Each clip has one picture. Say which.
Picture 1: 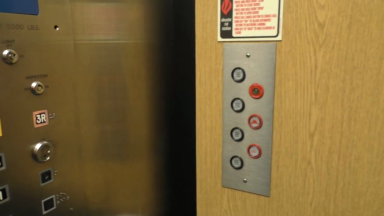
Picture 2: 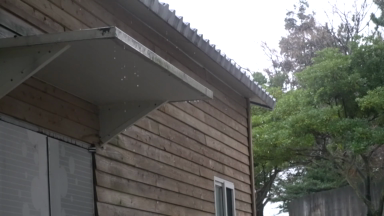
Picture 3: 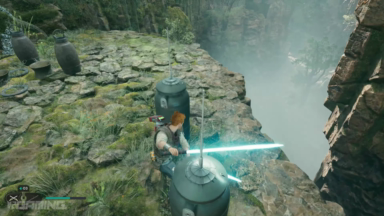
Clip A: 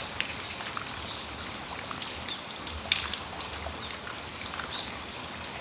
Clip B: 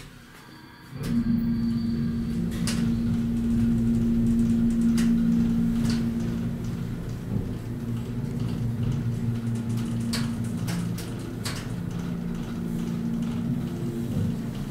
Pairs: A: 2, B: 1